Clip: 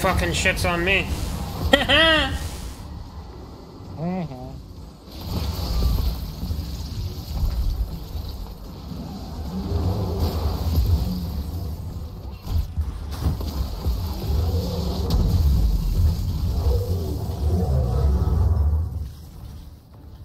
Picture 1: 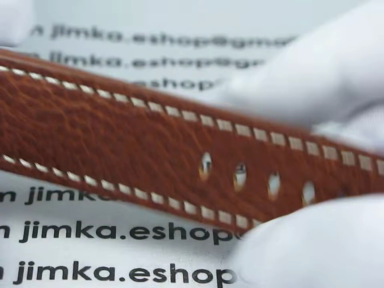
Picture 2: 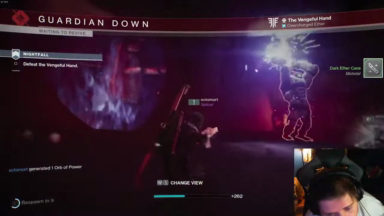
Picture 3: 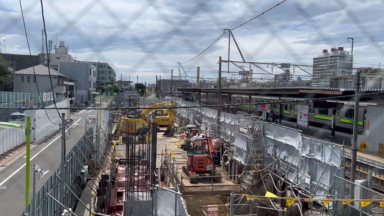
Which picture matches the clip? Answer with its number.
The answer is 2